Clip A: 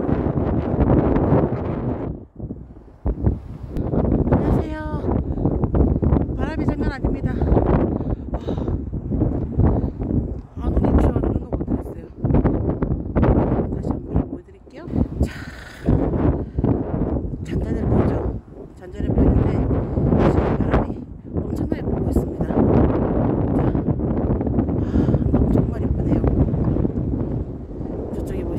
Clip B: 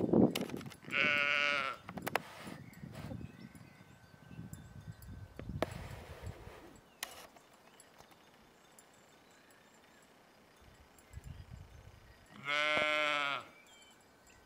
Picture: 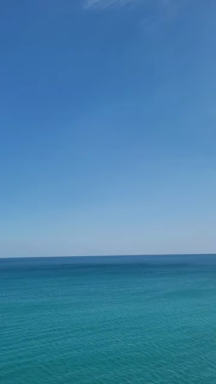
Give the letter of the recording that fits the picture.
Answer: A